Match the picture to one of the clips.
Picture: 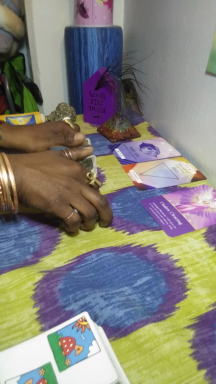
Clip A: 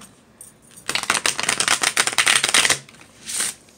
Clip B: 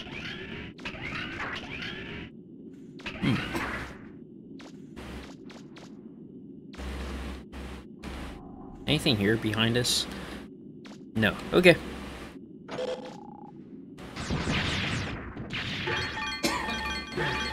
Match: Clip A